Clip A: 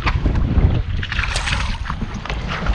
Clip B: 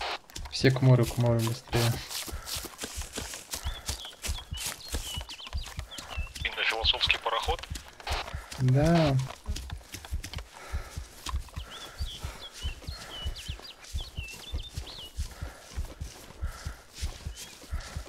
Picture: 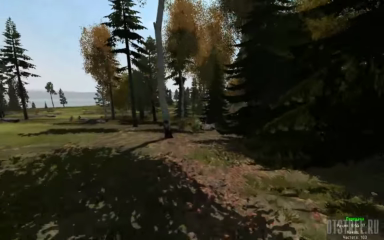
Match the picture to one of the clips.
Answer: B